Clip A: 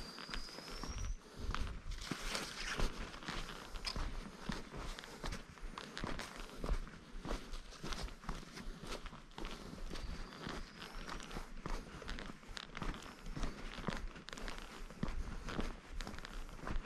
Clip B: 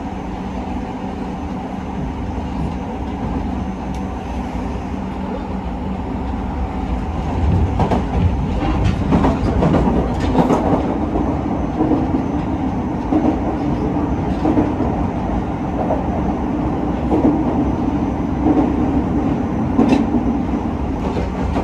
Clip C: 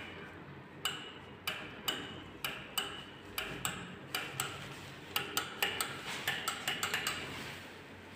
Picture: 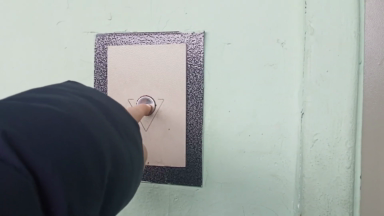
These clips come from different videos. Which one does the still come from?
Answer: C